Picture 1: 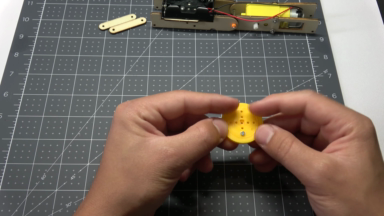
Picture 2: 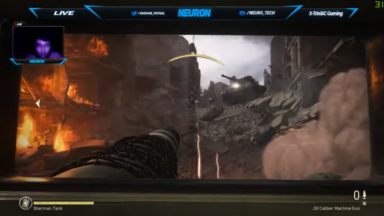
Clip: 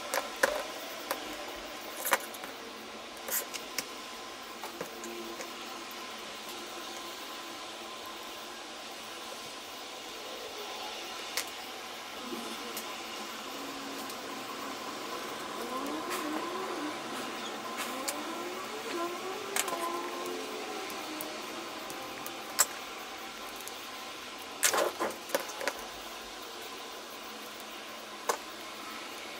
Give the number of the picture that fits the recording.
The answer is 1